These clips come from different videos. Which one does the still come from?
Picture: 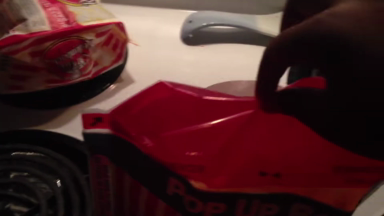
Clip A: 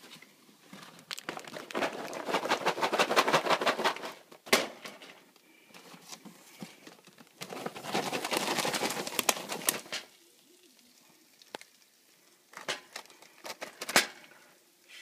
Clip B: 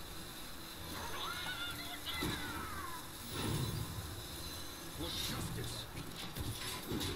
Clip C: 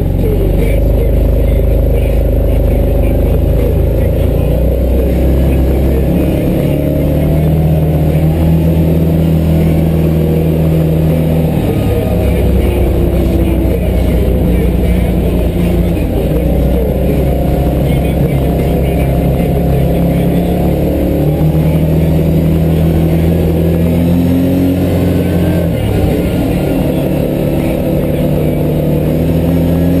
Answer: A